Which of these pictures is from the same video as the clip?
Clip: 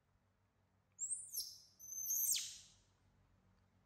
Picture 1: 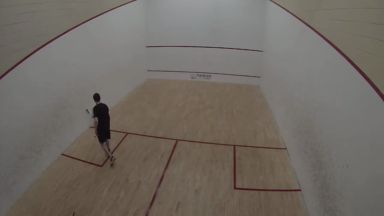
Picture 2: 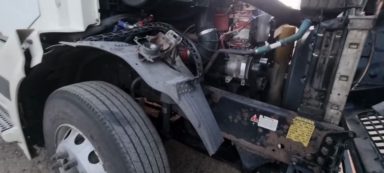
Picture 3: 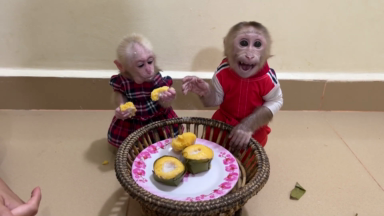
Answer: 3